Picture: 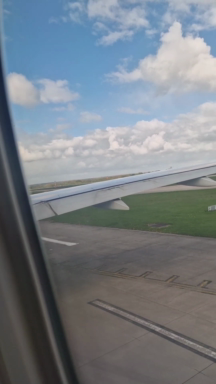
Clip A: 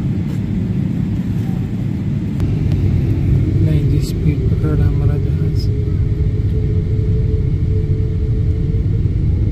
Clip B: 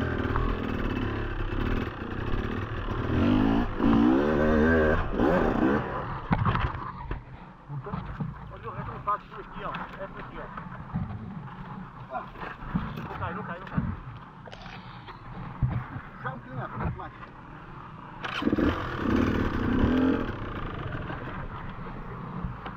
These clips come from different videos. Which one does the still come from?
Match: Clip A